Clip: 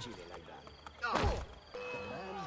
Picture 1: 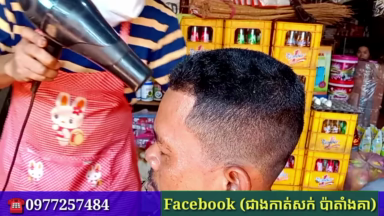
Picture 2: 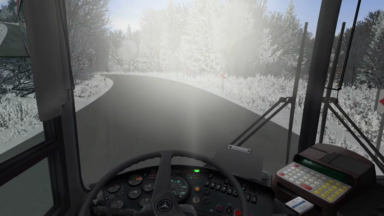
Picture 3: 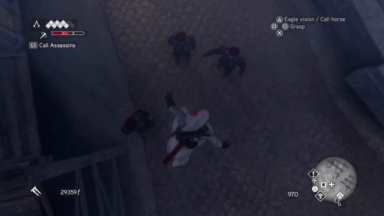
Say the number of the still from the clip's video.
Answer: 3